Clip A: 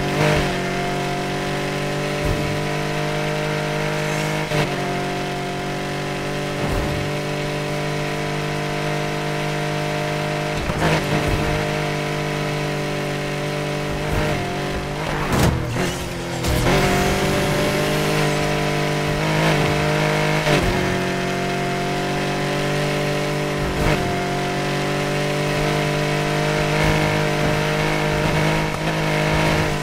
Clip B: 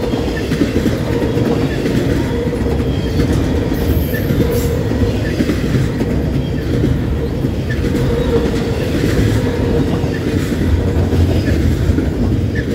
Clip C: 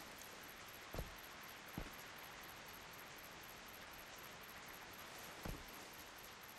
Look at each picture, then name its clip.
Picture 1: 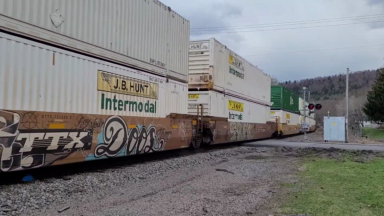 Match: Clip B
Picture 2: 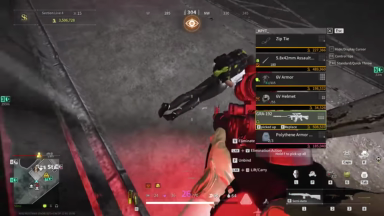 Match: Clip C